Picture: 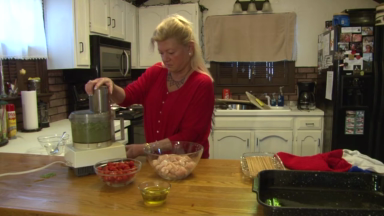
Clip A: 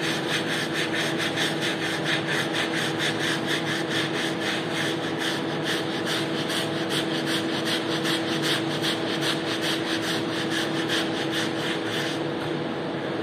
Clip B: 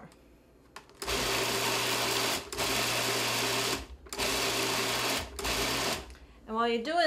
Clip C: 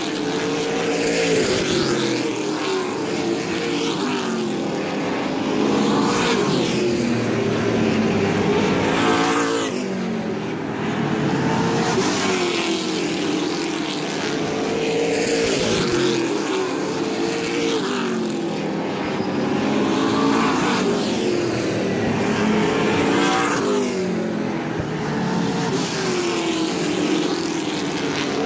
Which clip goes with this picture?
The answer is B